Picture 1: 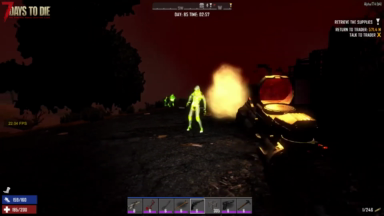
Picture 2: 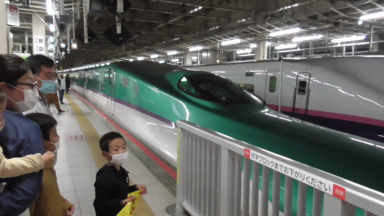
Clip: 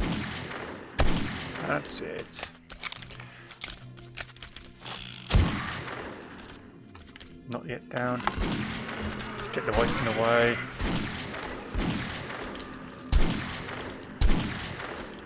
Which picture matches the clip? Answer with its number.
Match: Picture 1